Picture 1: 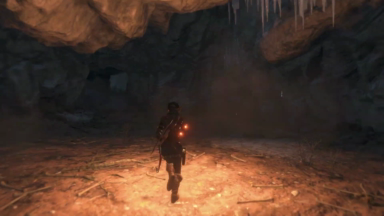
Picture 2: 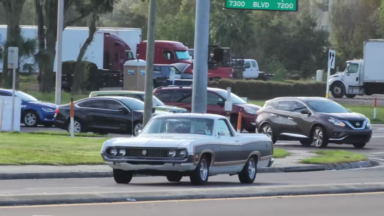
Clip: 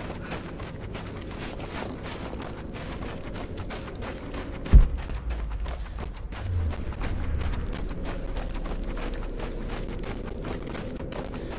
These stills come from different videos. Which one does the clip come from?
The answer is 1